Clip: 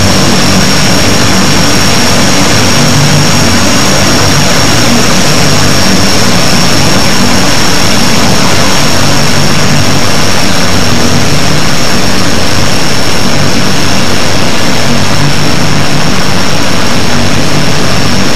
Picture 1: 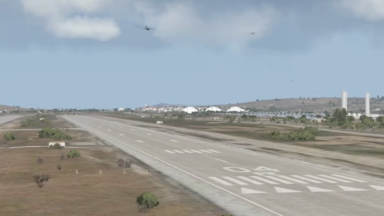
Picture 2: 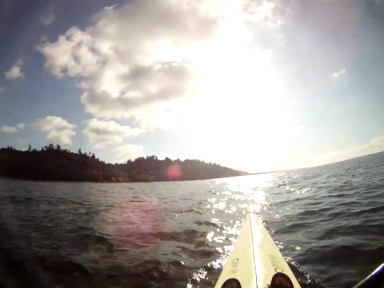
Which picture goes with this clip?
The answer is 1